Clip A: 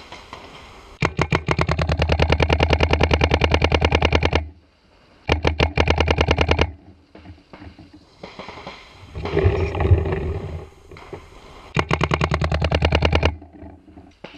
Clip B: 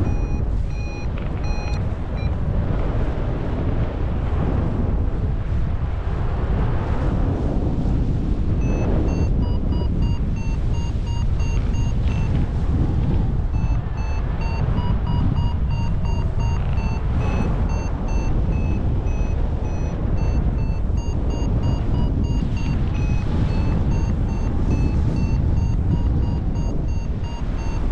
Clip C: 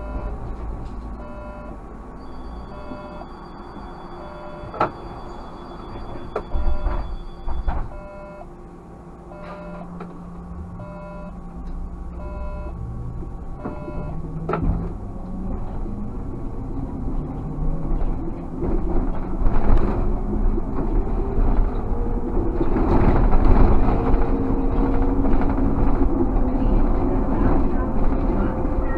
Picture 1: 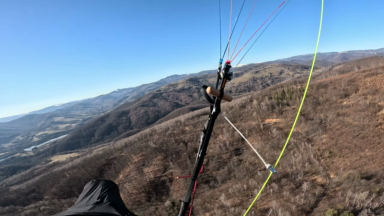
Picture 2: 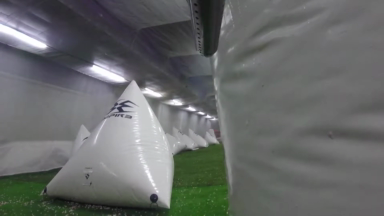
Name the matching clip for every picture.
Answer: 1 B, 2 A